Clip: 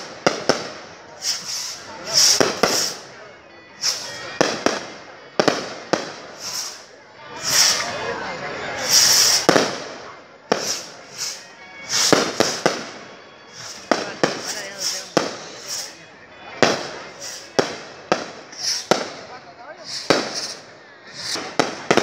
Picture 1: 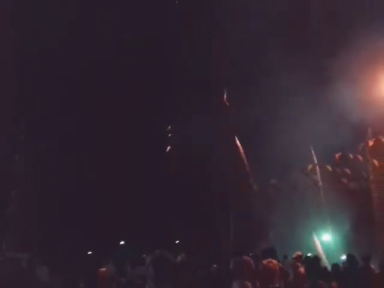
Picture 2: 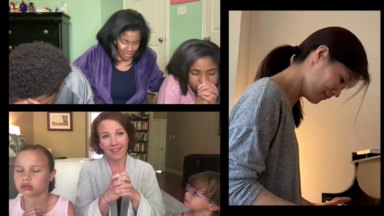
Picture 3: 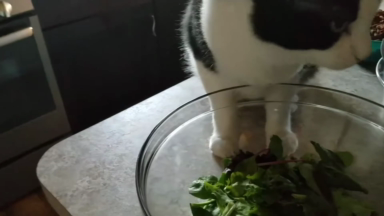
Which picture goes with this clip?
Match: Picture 1